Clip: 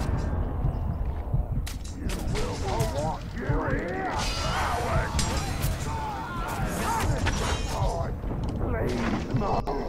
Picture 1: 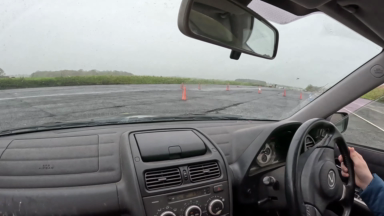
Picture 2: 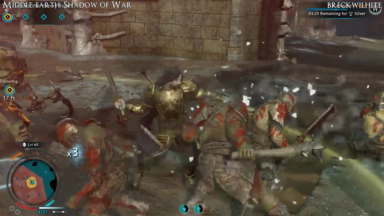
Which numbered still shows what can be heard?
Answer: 2